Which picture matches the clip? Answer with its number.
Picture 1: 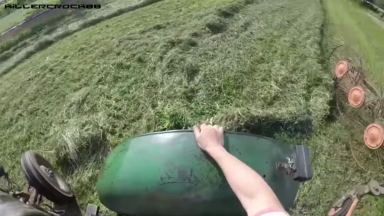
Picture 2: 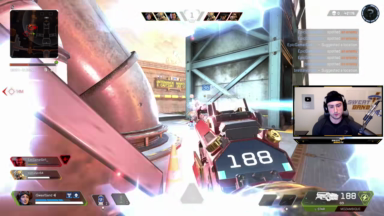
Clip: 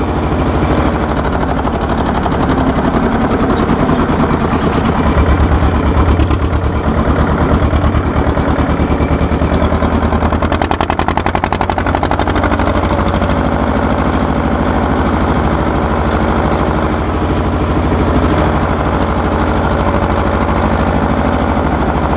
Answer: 1